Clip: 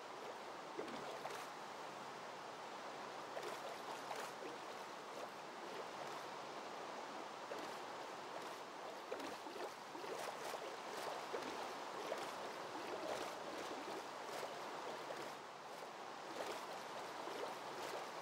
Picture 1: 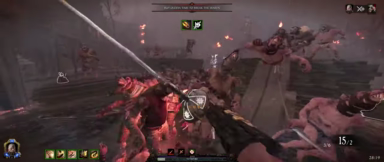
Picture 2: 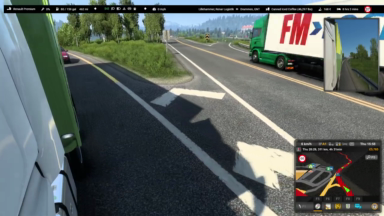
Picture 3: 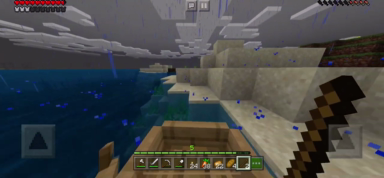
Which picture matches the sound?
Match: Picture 3